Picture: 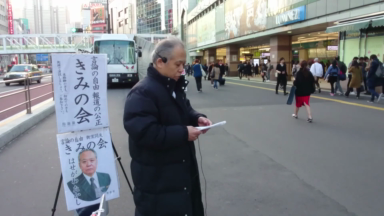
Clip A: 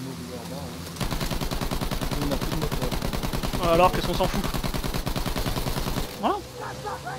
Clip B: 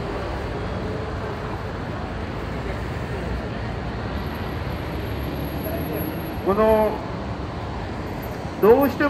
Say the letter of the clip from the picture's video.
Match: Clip B